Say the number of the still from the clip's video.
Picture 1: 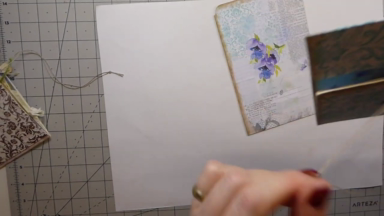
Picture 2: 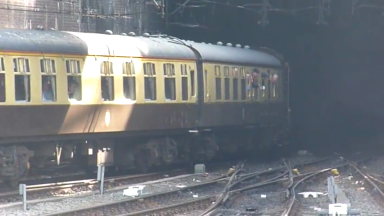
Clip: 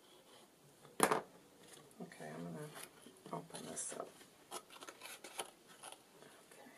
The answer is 1